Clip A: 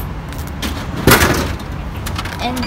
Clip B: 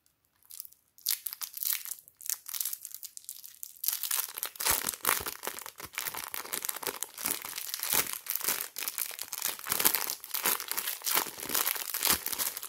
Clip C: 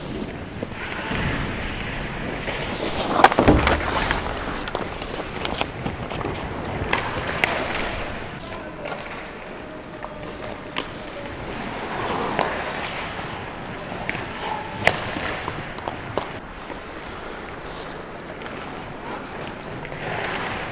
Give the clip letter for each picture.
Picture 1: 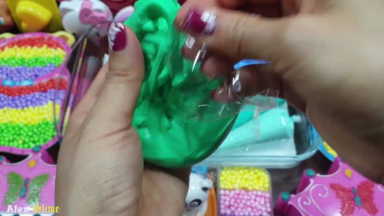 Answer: B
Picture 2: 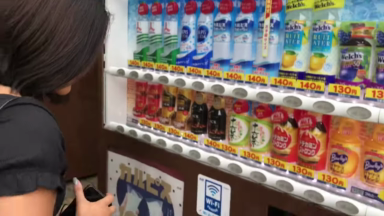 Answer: A